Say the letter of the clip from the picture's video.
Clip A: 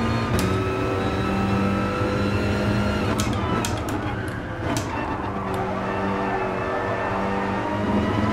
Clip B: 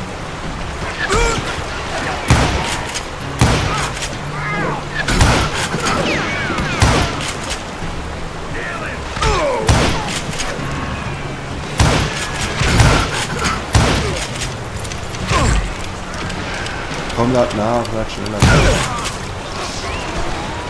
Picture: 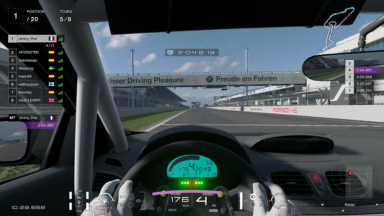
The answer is A